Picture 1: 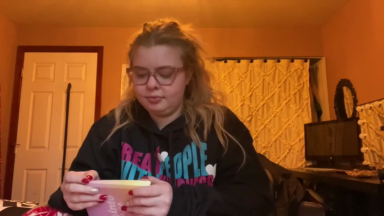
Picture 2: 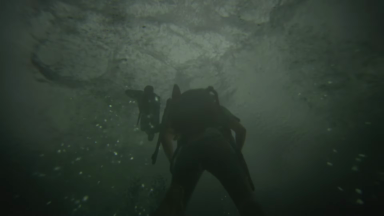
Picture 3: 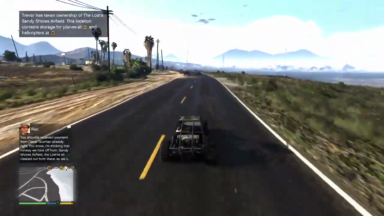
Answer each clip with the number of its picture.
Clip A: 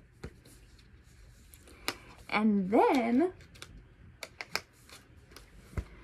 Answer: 1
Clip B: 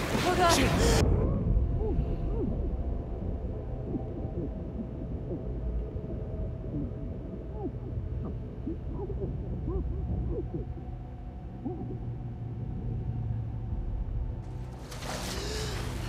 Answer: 2